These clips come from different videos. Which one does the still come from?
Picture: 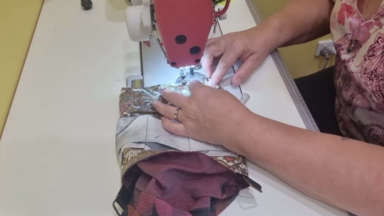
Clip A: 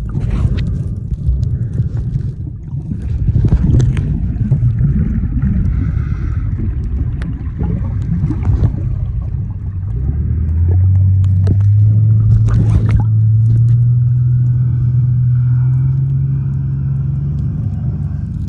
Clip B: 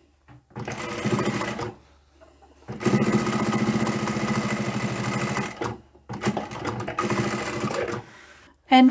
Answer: B